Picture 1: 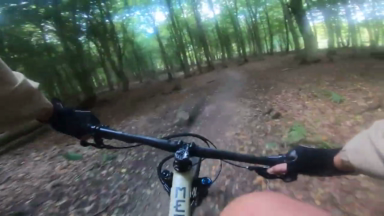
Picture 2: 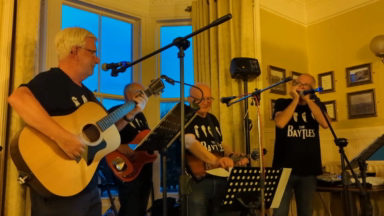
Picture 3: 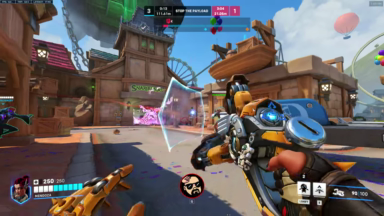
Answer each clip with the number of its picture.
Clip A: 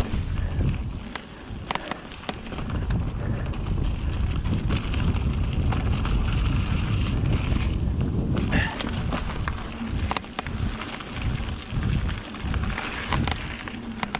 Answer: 1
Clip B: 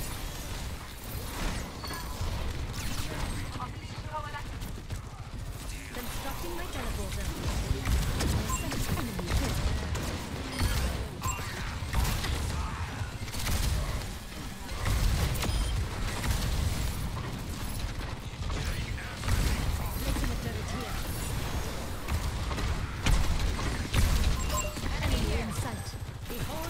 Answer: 3